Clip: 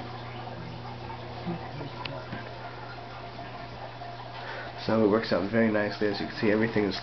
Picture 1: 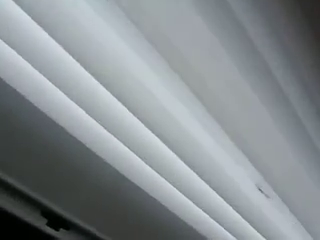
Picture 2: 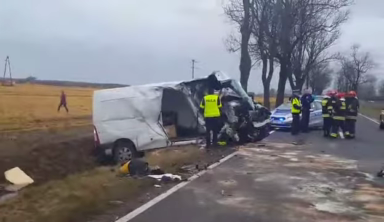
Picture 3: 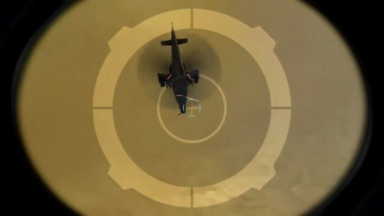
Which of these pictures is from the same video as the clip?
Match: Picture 1